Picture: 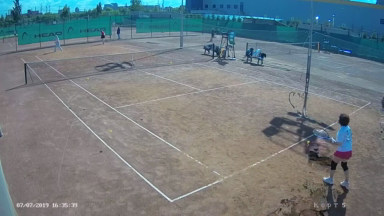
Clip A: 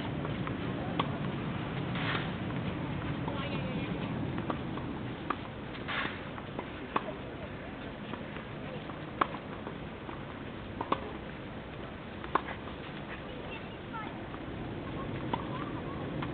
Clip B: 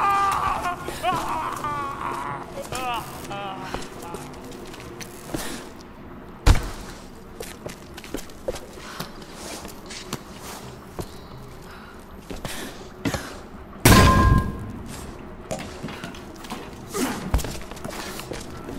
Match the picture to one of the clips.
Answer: A